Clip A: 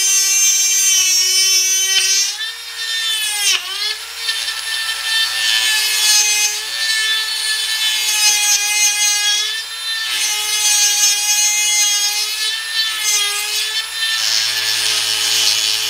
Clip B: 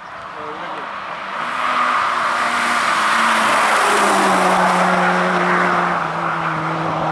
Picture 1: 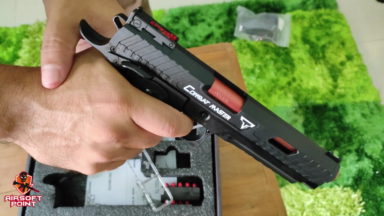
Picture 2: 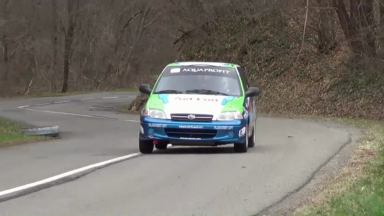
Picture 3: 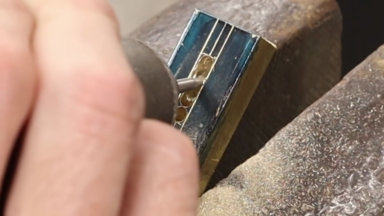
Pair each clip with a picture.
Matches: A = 3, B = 2